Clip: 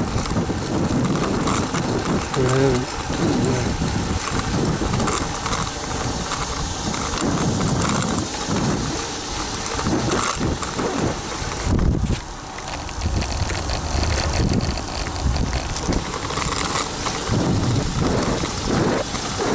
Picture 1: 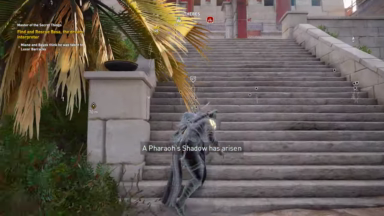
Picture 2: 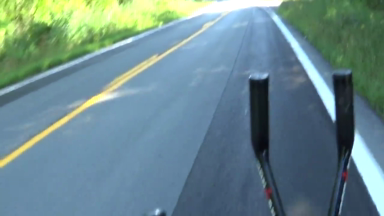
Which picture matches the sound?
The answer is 2